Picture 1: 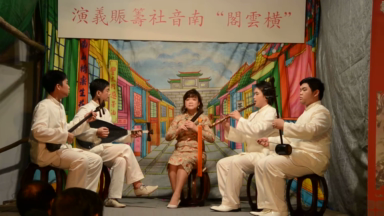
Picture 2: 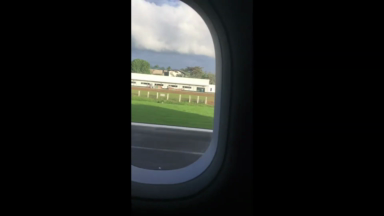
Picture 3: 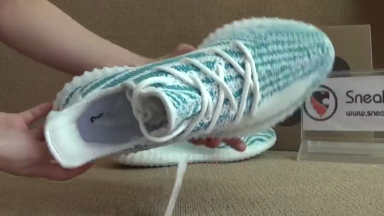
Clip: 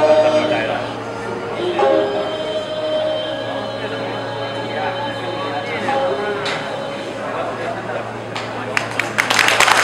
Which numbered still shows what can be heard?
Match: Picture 1